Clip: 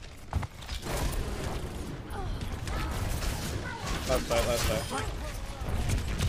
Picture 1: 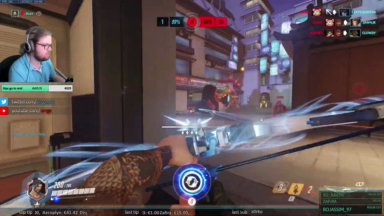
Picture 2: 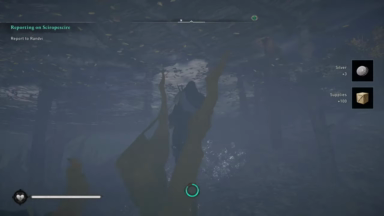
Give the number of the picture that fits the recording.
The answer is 1